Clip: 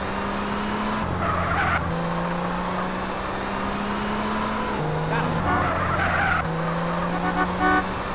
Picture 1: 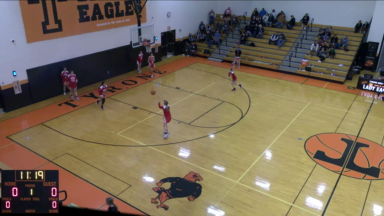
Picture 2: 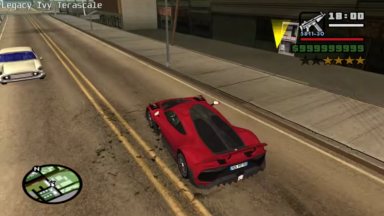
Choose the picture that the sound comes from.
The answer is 2